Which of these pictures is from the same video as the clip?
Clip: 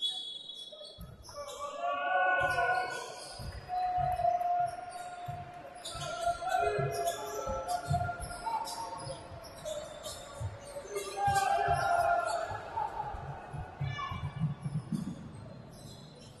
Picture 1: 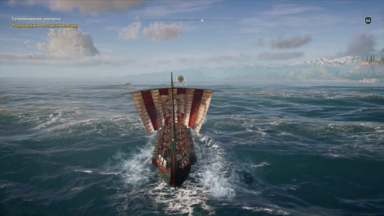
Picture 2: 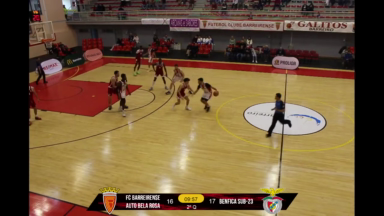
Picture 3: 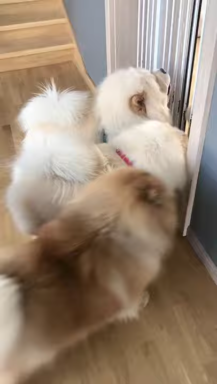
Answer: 2